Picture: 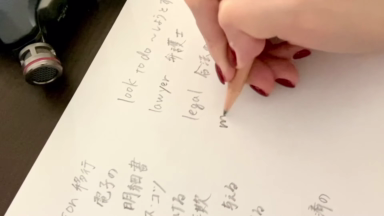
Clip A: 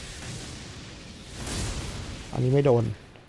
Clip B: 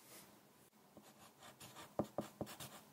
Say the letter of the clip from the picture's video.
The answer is B